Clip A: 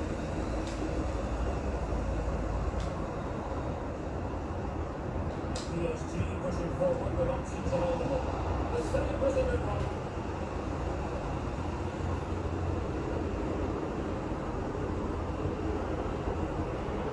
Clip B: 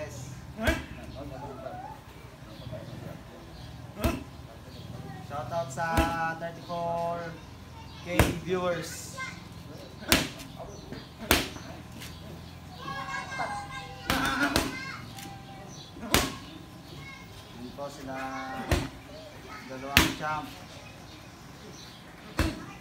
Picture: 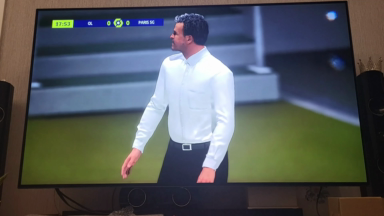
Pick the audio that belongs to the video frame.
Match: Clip A